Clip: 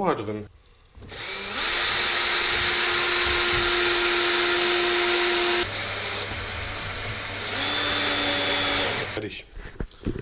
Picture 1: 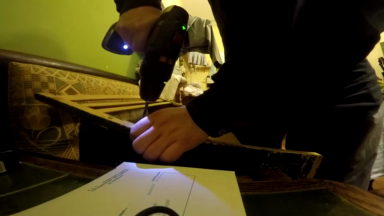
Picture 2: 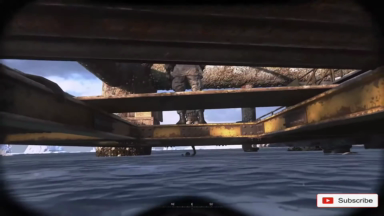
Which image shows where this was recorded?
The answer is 1